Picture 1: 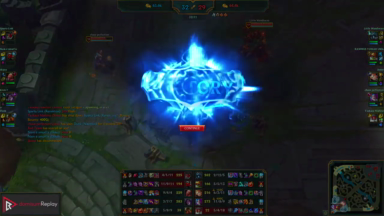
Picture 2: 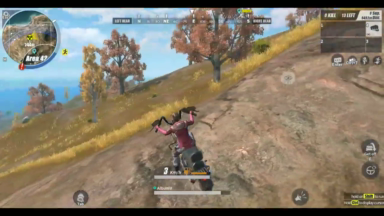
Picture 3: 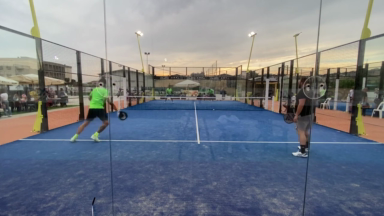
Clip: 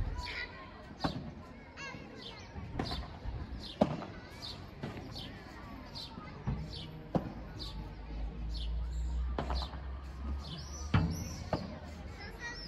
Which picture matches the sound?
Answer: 3